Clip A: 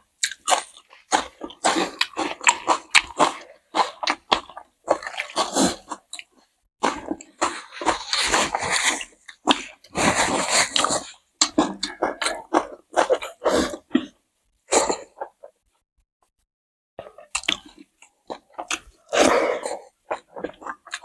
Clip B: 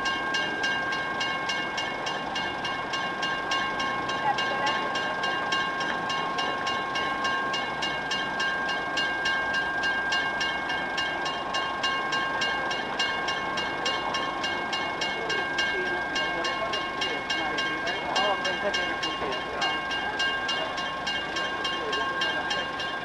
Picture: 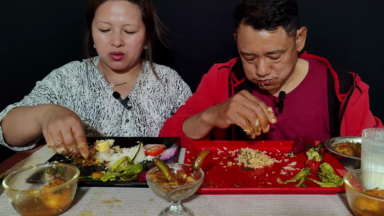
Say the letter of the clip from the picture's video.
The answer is A